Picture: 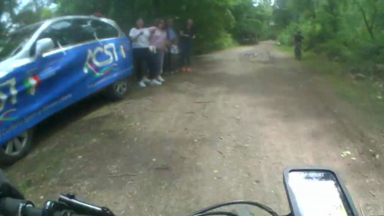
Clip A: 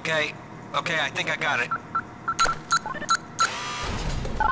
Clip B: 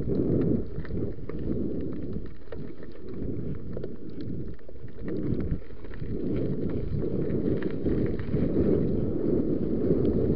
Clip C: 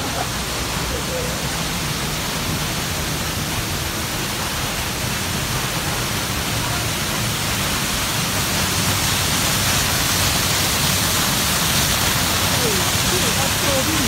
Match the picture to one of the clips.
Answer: B